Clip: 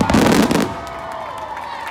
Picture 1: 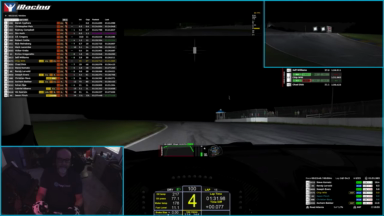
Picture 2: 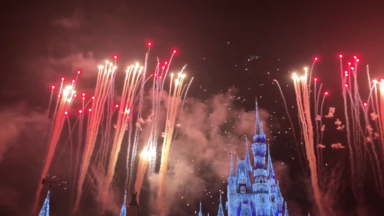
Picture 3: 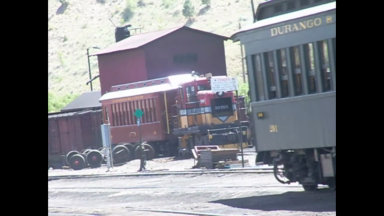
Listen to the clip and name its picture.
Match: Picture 2